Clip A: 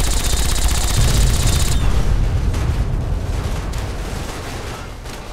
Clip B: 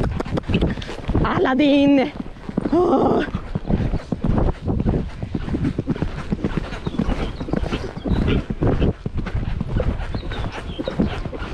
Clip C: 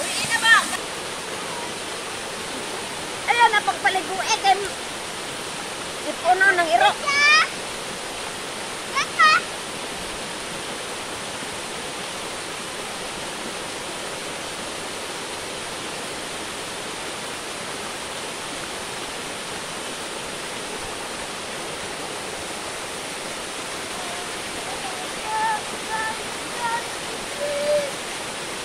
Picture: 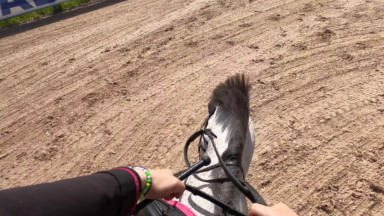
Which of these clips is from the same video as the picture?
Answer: B